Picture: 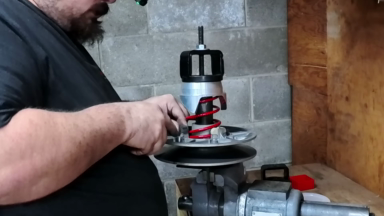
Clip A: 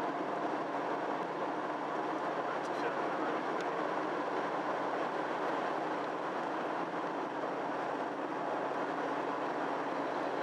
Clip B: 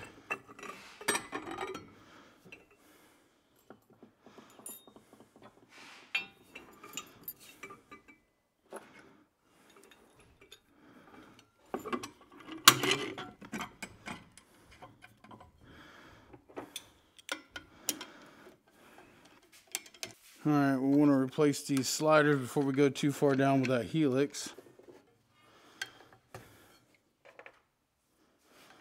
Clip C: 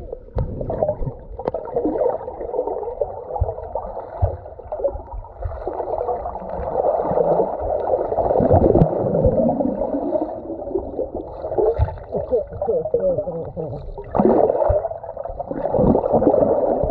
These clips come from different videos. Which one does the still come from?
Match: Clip B